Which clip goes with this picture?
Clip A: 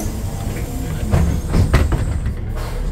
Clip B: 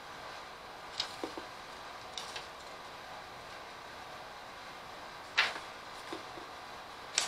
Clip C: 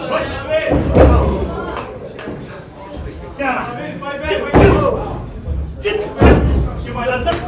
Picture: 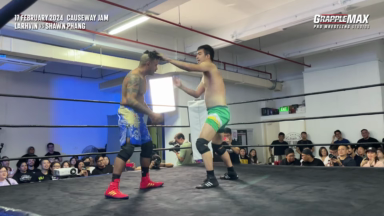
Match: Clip C